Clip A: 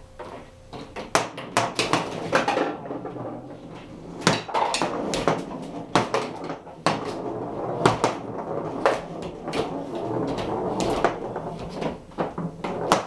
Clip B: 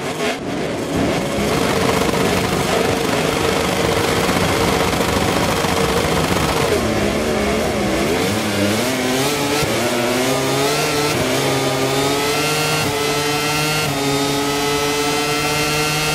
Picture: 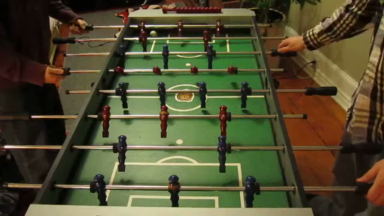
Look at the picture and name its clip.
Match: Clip A